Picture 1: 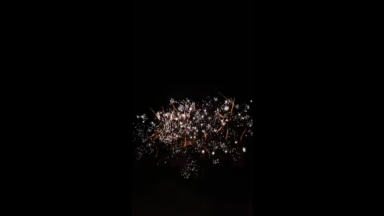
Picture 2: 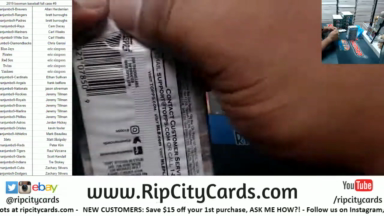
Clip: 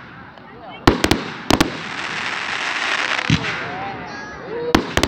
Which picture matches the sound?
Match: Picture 1